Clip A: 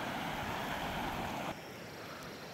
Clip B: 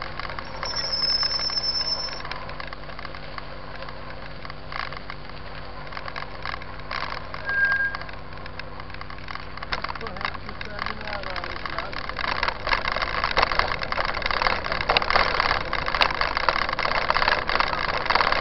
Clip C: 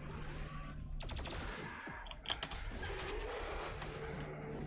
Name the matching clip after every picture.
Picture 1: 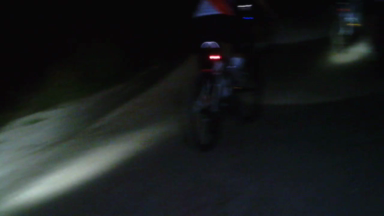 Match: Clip B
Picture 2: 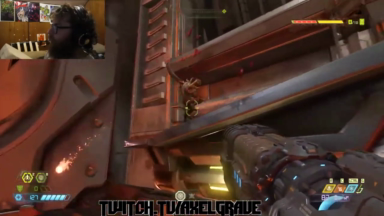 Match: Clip C